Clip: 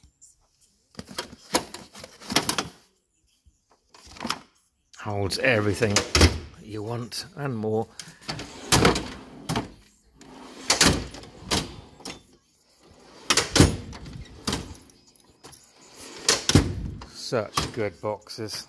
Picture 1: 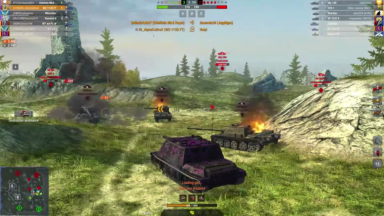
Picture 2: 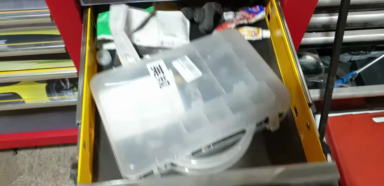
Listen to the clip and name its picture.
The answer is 2